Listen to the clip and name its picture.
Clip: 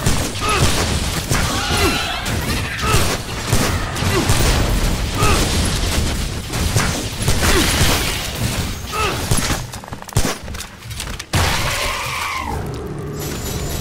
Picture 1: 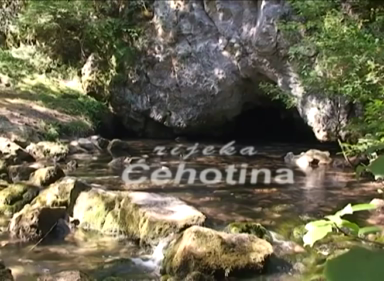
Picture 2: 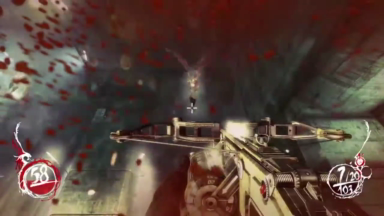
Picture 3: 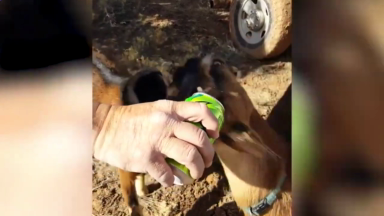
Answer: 2